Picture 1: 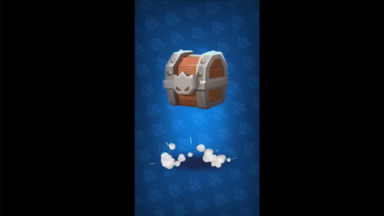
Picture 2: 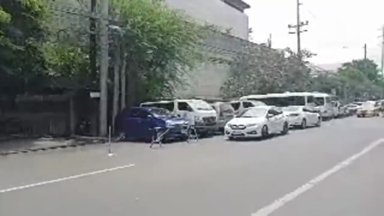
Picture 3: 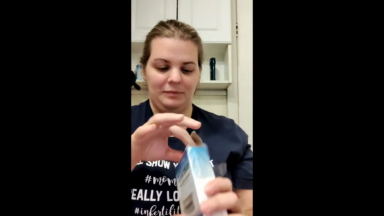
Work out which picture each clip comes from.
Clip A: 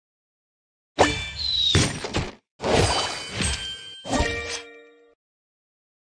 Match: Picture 1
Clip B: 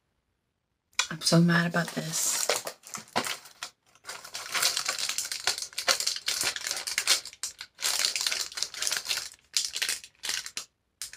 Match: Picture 3